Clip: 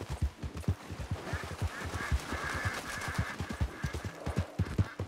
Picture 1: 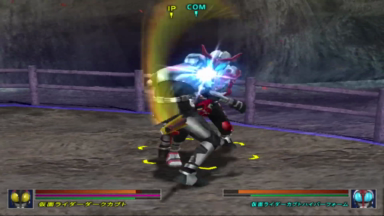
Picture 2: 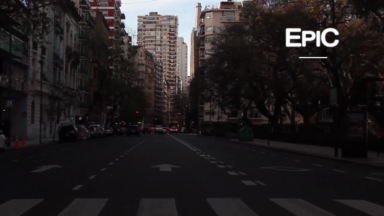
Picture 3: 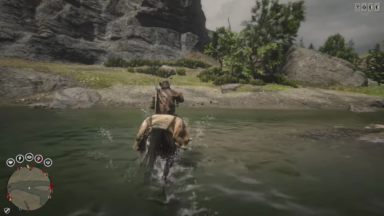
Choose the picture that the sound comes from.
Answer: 3